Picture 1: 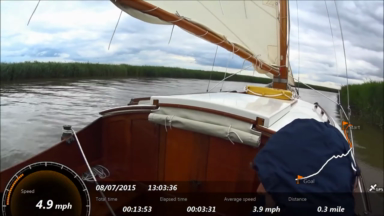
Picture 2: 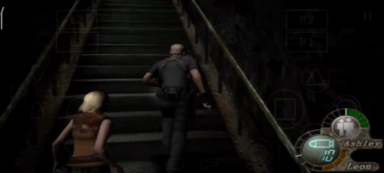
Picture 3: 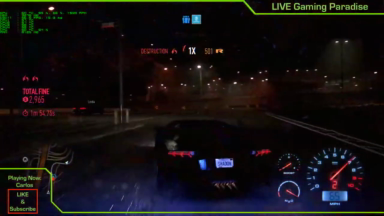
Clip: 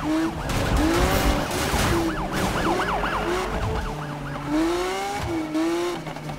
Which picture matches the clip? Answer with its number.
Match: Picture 3